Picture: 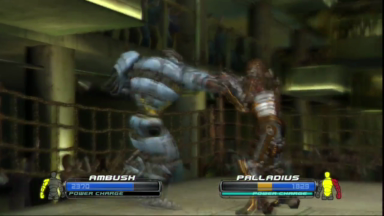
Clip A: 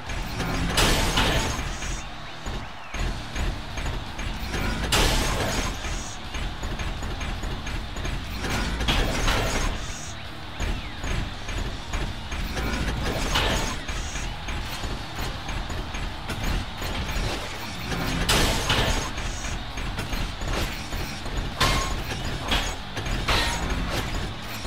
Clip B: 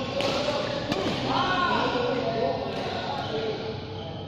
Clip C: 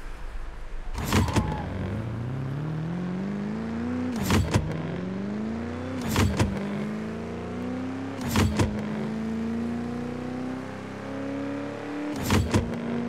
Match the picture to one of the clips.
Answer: A